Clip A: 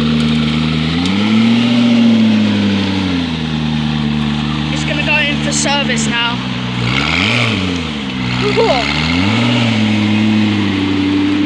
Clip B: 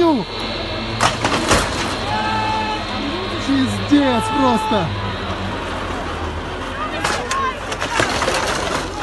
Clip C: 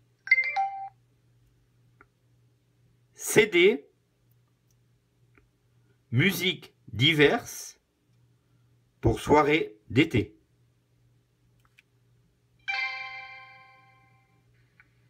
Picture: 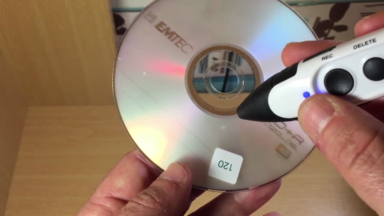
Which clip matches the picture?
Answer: C